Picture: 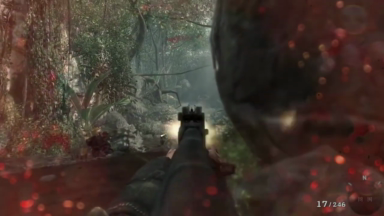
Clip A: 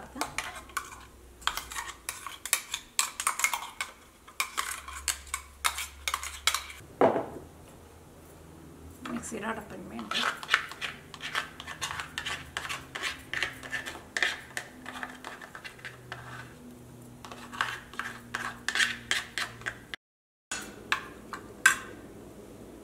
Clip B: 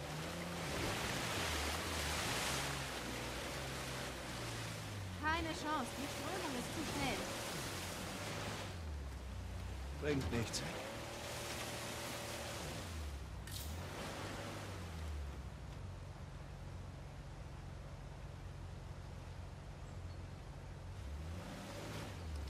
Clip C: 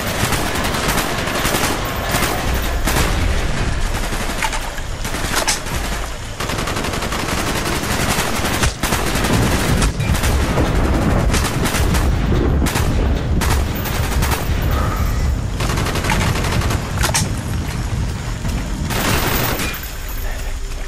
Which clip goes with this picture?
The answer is C